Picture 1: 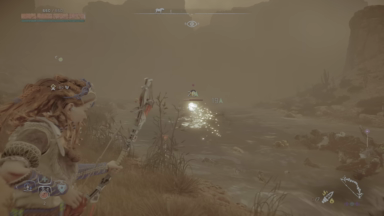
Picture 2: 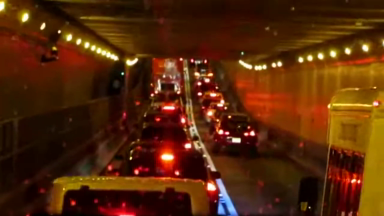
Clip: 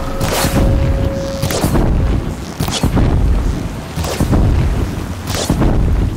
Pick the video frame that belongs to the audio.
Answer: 1